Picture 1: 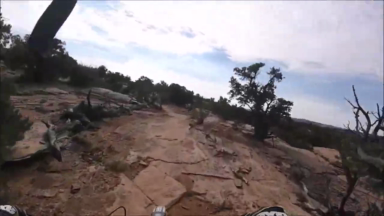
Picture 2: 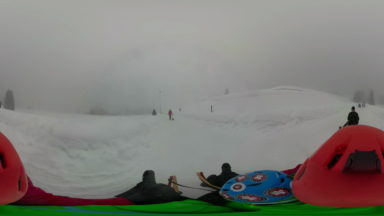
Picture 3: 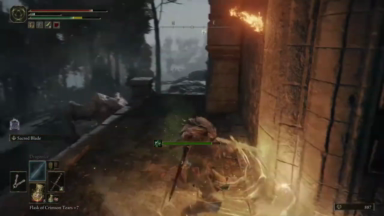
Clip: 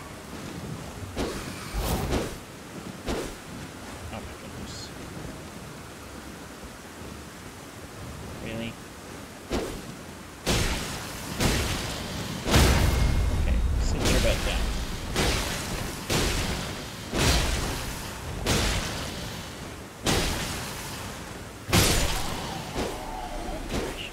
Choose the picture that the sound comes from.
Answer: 3